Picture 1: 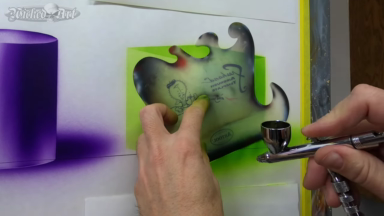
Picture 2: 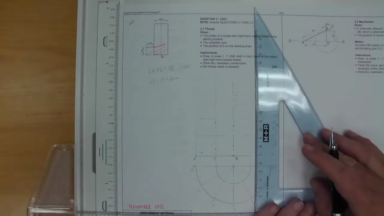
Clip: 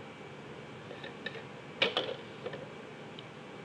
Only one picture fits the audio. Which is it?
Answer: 2